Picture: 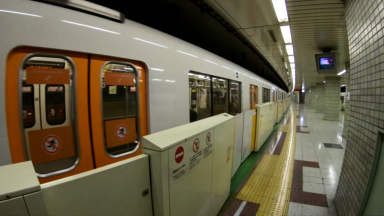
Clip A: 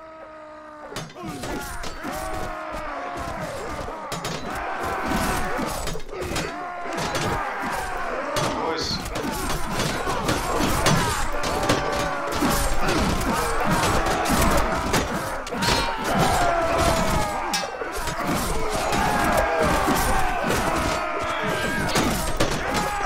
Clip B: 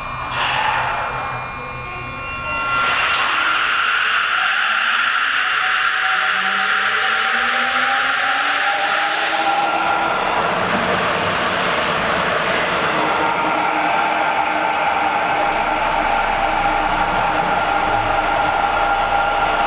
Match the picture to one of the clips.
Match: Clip B